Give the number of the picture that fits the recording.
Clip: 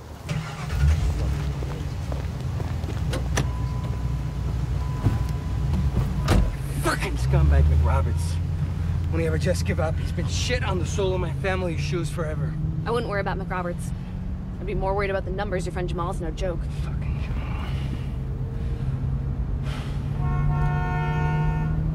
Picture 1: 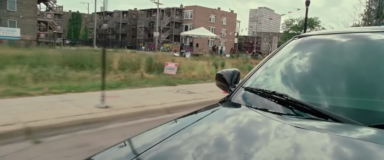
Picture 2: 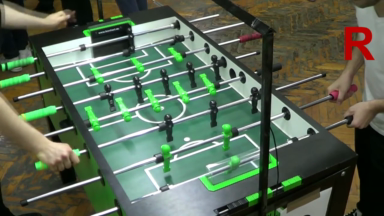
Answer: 1